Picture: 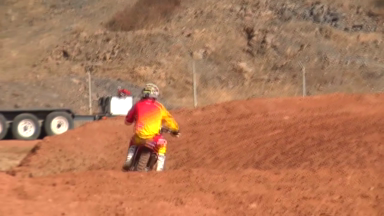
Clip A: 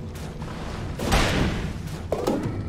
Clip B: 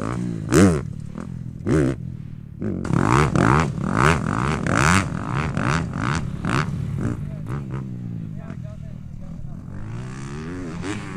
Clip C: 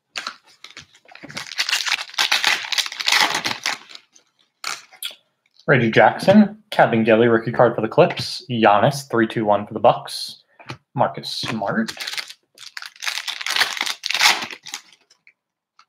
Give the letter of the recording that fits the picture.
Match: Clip B